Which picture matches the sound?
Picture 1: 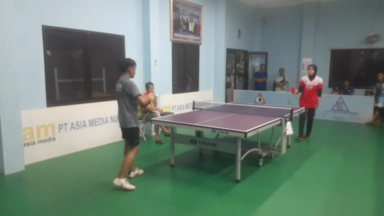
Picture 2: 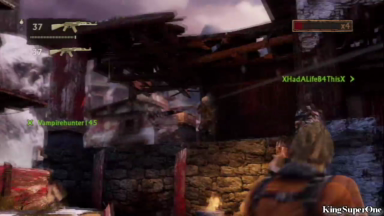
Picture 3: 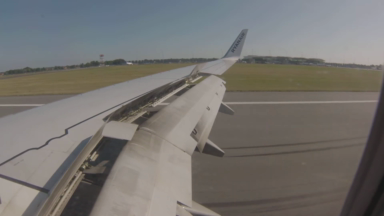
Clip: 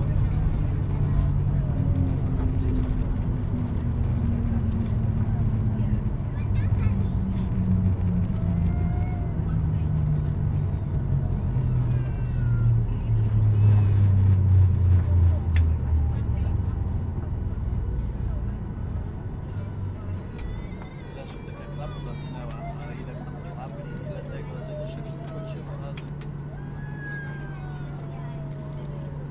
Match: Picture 3